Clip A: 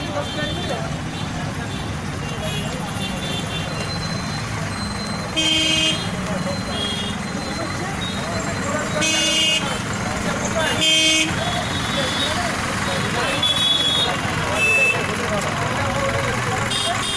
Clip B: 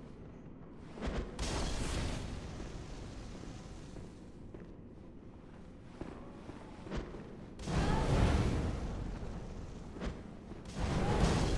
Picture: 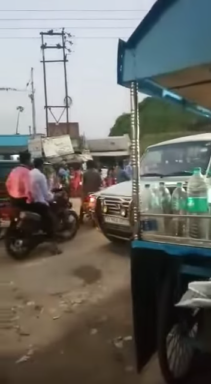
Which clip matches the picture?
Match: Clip A